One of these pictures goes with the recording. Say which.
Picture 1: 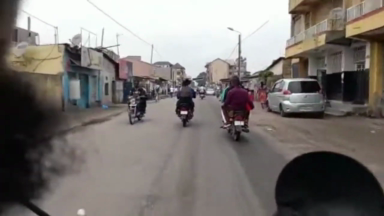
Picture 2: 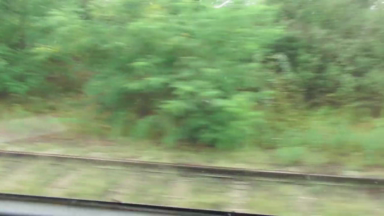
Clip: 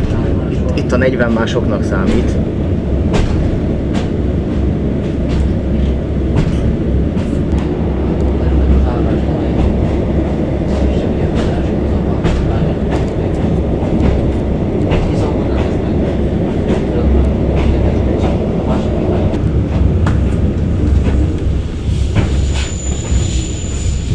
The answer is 2